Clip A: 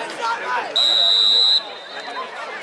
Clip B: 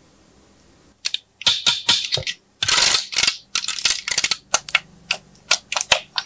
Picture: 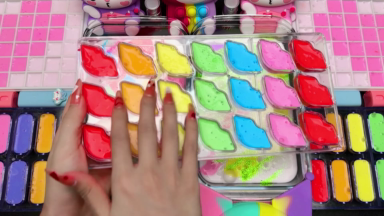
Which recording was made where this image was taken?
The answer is B